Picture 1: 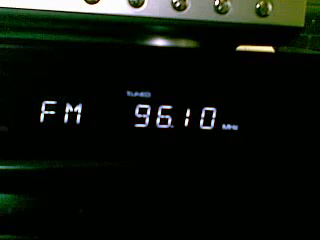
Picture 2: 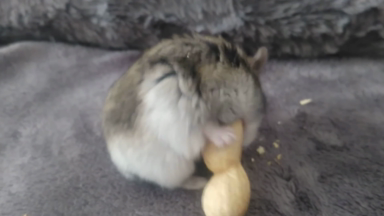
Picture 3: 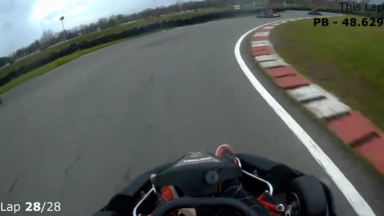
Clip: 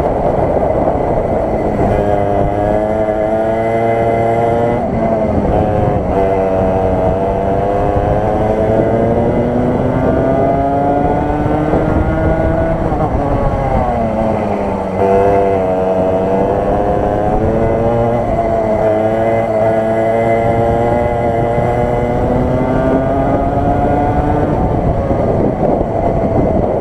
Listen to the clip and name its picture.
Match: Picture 3